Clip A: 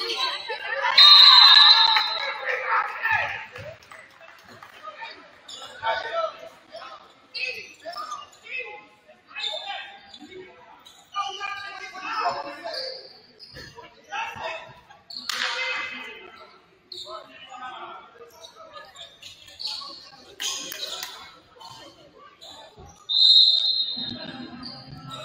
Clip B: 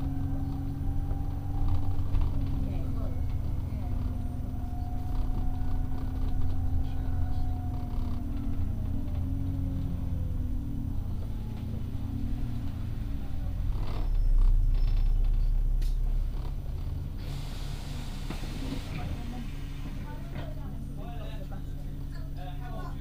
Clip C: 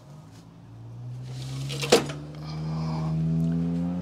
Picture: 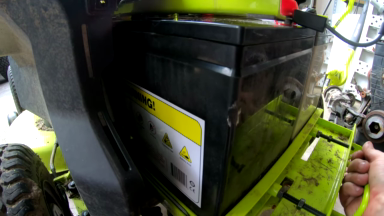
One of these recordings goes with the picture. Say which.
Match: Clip C